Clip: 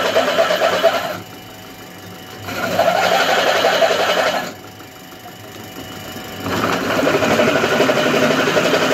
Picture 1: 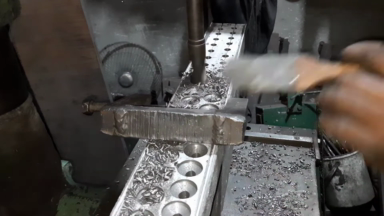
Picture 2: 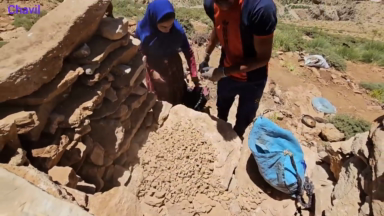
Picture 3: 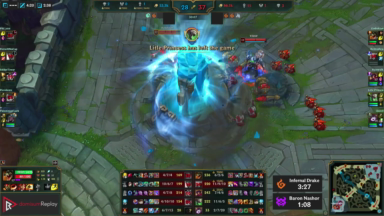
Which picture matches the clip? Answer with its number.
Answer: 1